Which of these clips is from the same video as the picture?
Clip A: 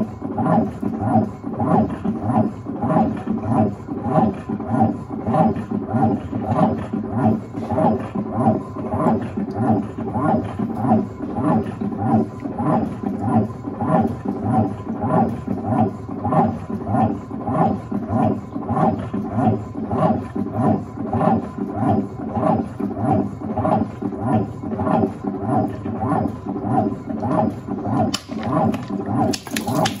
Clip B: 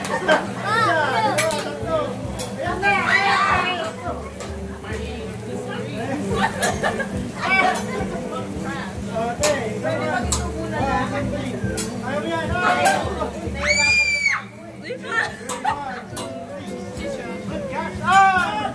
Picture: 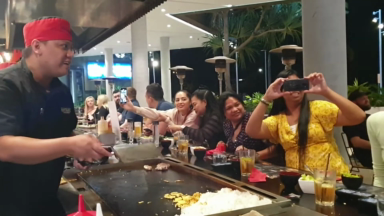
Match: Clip B